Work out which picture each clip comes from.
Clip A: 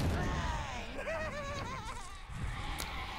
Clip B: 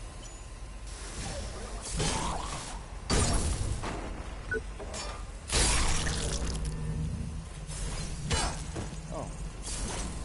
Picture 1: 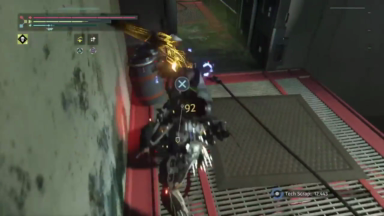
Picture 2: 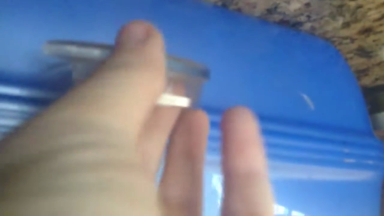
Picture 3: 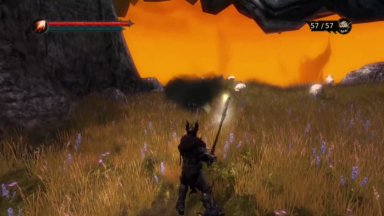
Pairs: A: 3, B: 1